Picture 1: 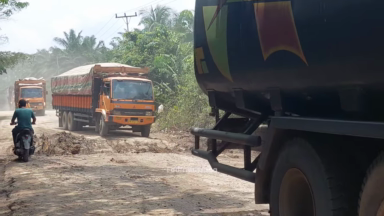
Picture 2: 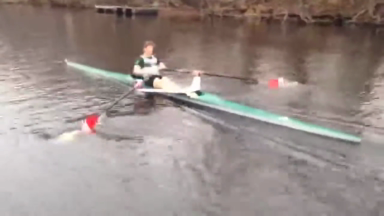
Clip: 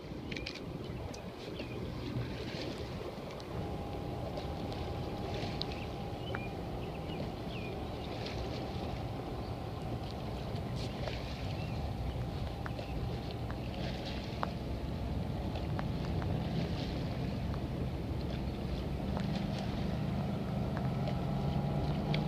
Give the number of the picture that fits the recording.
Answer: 2